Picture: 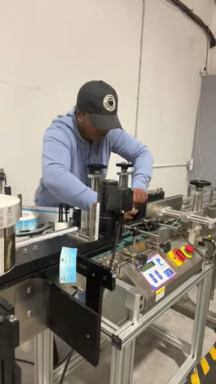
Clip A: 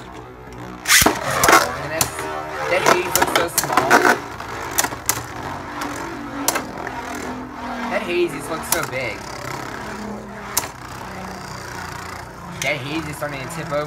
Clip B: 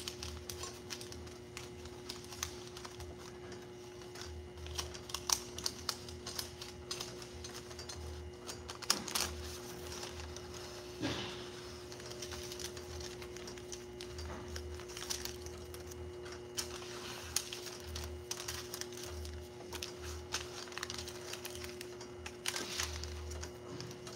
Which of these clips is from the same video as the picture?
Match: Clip B